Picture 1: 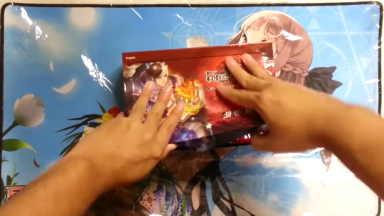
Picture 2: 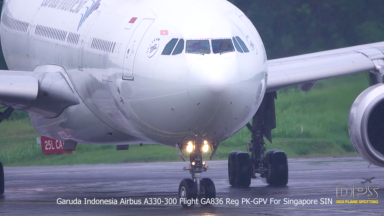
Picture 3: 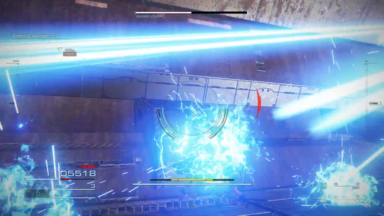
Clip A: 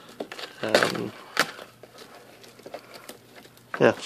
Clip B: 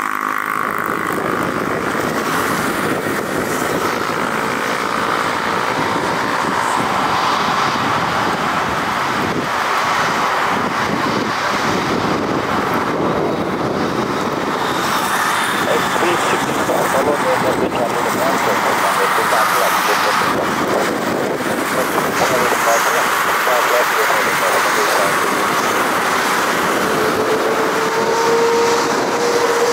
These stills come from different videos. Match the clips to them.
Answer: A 1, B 2